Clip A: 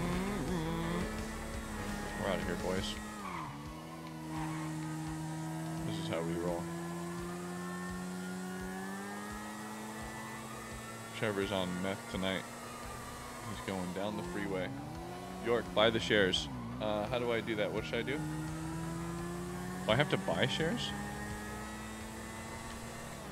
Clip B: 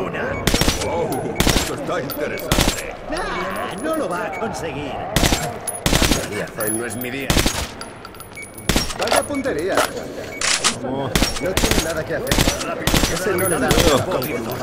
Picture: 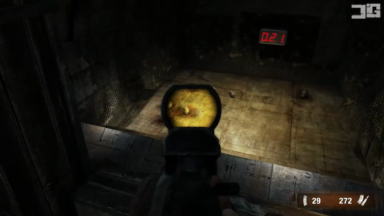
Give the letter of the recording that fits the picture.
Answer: B